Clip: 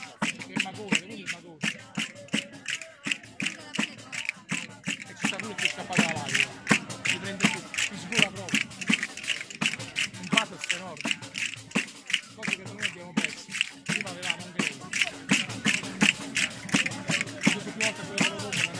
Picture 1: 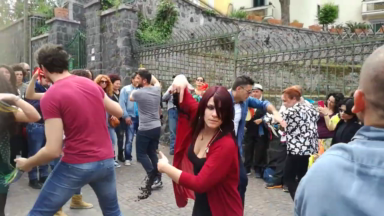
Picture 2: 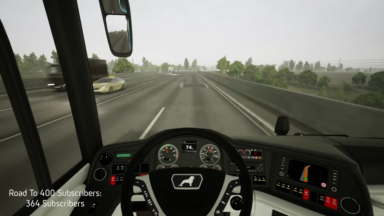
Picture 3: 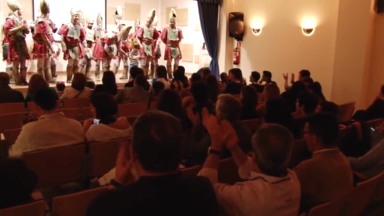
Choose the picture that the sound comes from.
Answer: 1